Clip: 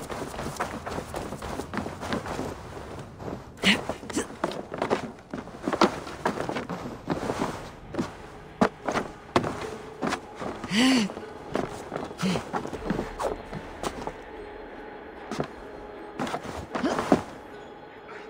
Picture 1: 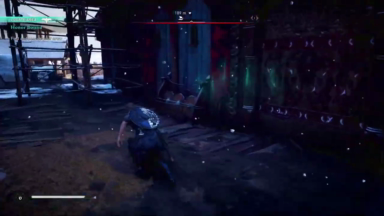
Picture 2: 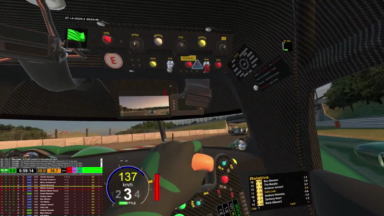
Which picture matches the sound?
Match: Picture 1